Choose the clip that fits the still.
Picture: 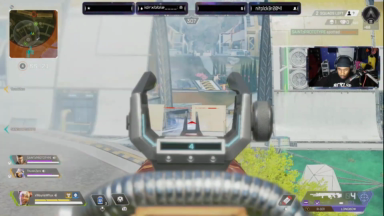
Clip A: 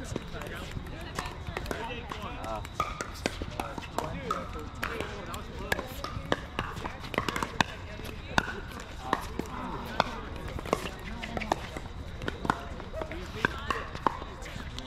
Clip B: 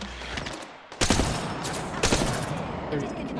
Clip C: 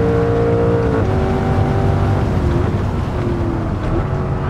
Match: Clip B